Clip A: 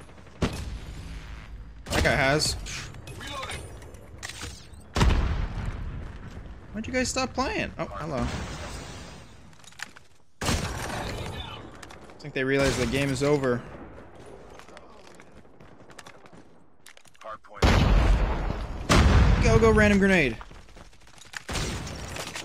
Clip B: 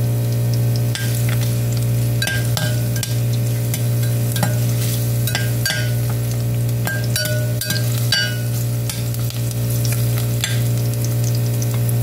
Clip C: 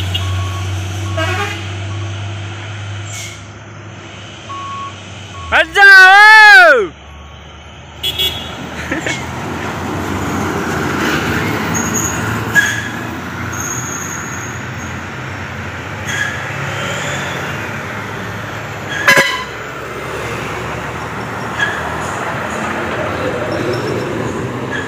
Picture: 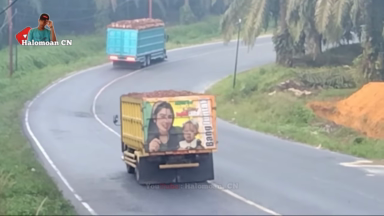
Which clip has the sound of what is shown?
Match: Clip C